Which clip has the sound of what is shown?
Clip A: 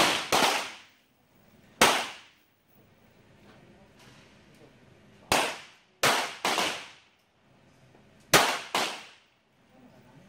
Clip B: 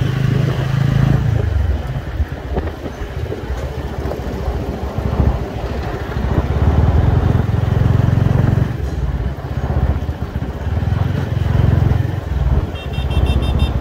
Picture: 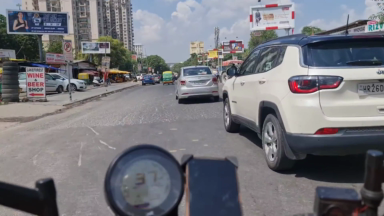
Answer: B